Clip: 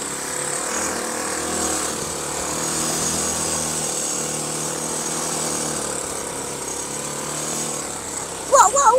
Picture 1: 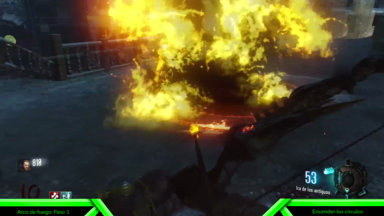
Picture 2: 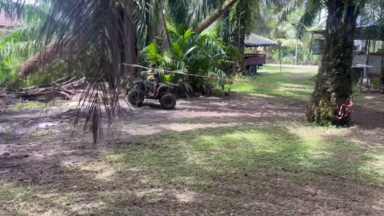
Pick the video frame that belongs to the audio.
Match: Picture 2